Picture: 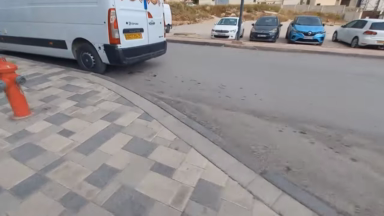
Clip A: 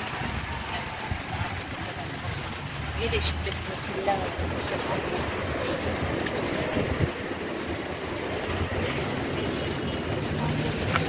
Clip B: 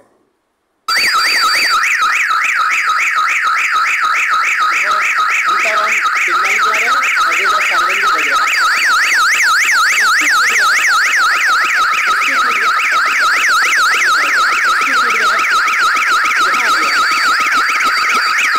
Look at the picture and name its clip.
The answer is A